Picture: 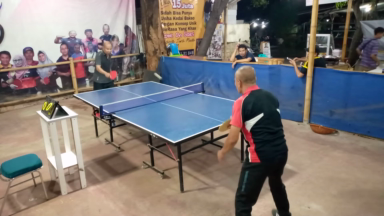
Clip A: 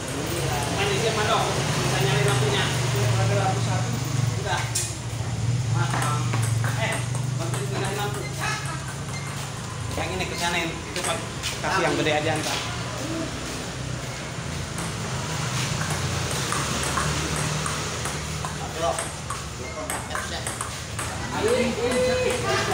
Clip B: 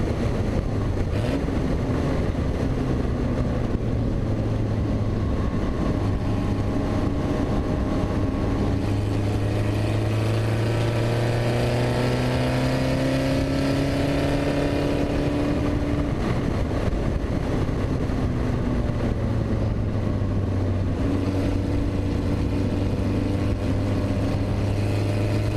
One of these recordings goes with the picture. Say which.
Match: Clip A